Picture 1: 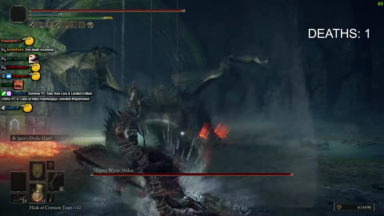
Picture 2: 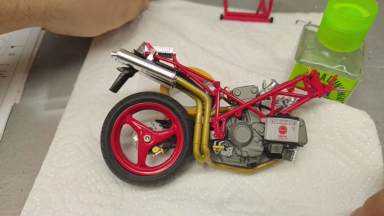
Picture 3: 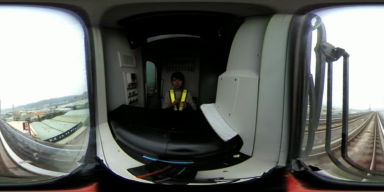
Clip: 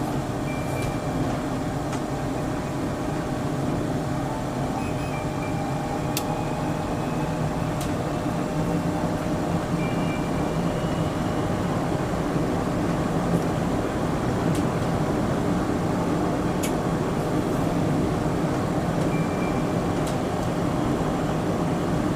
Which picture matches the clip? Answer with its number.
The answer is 3